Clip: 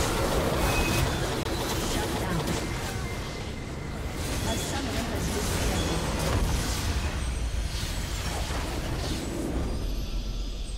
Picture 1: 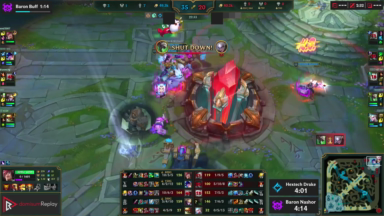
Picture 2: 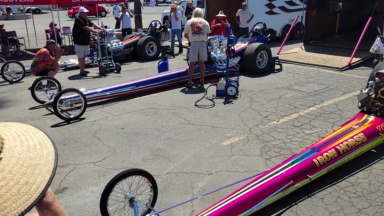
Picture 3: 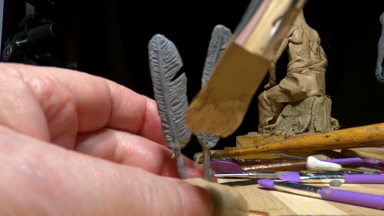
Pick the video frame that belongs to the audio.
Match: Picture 1